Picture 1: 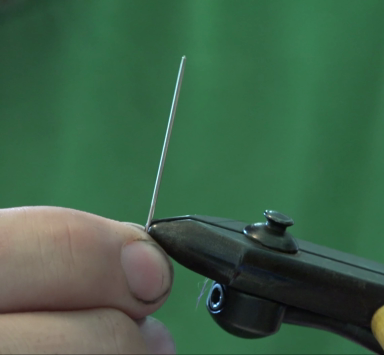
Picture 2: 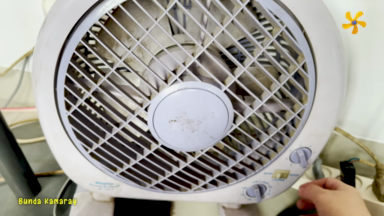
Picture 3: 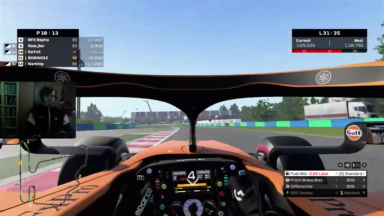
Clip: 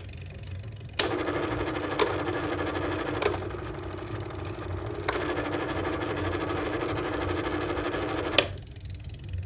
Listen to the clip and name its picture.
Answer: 2